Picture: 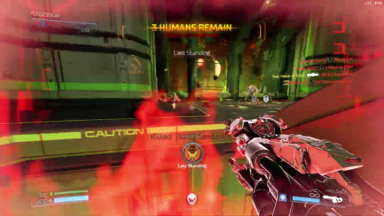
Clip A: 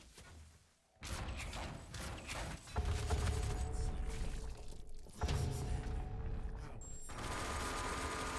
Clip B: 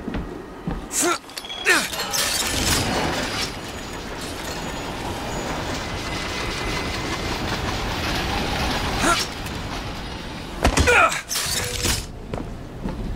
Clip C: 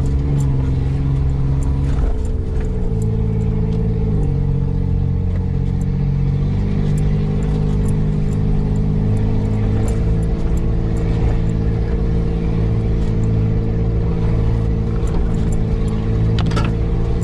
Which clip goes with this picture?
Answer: A